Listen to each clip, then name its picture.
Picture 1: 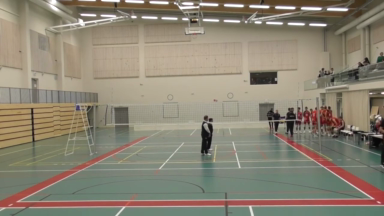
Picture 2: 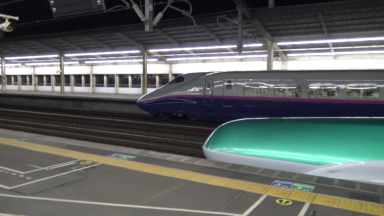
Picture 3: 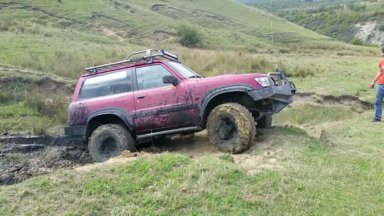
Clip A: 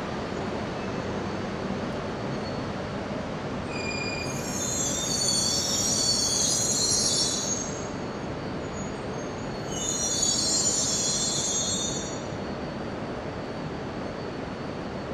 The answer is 2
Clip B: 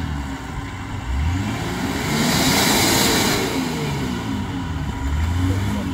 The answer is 3